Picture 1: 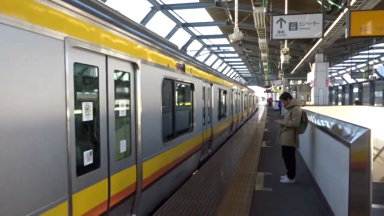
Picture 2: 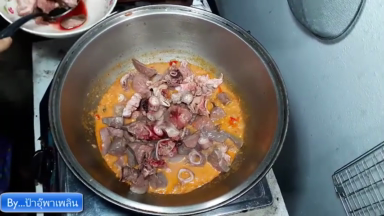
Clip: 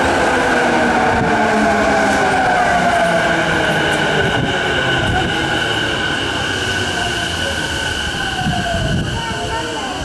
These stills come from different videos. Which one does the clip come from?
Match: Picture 1